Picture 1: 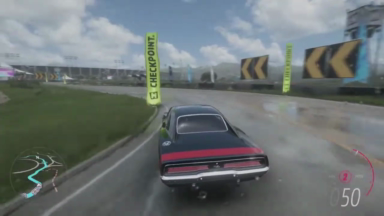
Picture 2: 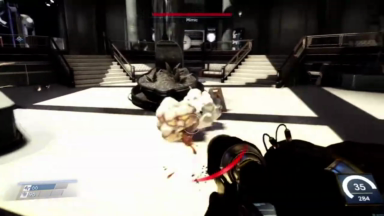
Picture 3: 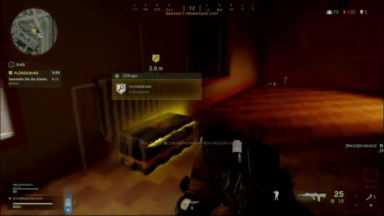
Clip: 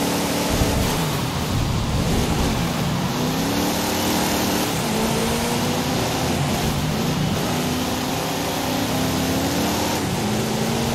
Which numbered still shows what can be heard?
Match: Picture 1